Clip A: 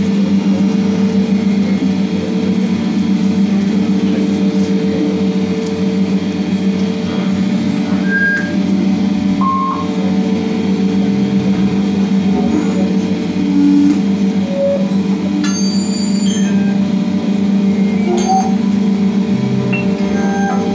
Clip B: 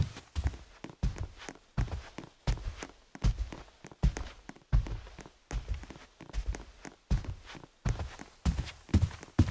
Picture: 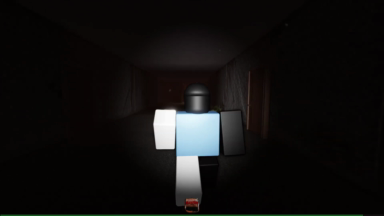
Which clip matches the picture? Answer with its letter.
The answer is B